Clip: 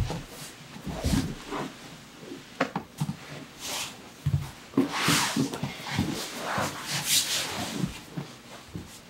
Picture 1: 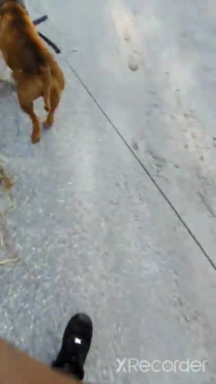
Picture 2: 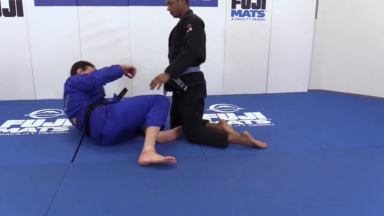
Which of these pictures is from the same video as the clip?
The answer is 2